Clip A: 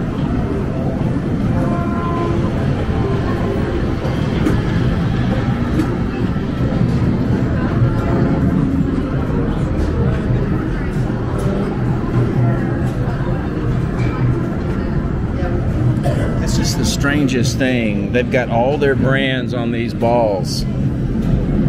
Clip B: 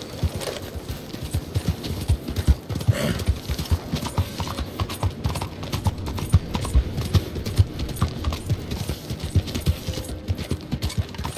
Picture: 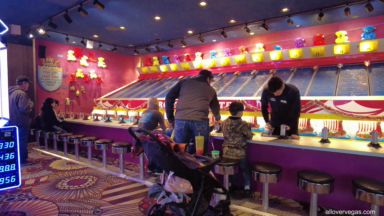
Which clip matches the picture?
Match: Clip A